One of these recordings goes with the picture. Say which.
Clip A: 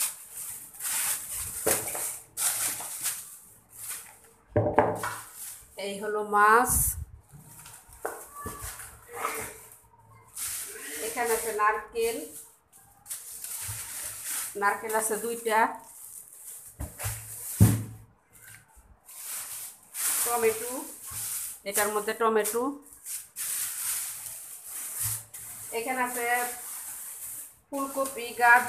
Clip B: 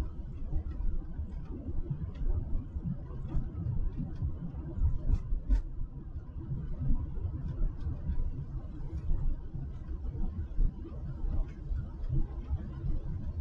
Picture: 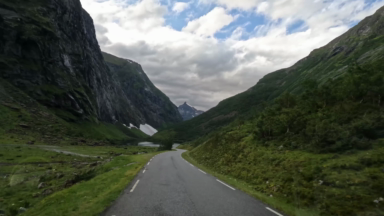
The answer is B